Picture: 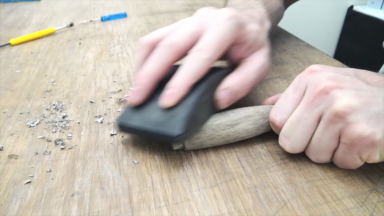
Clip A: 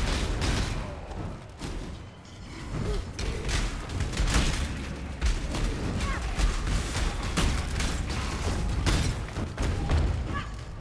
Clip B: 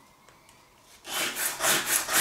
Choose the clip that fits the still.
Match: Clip B